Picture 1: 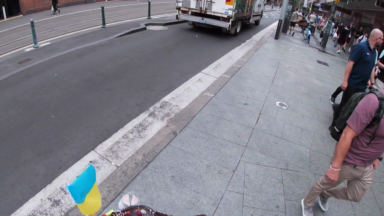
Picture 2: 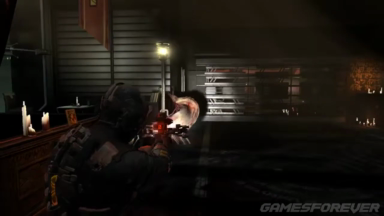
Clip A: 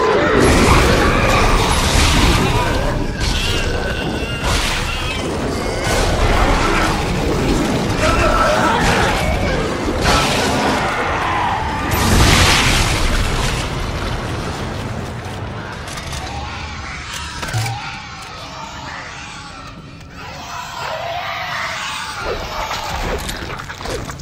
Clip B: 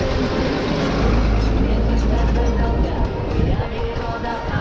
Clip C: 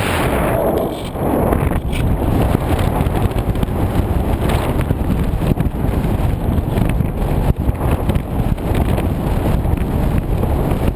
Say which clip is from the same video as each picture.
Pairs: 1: B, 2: A